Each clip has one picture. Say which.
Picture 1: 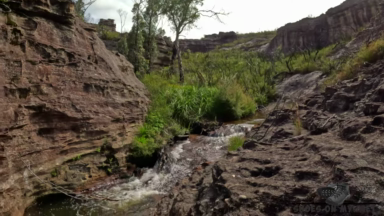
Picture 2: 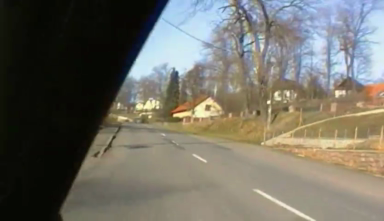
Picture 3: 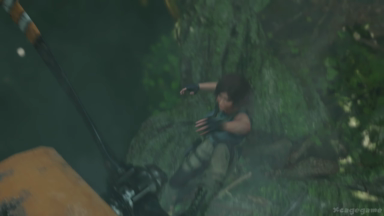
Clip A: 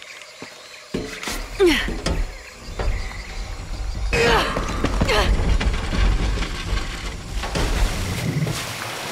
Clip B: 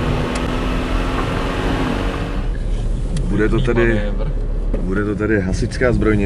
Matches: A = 3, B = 2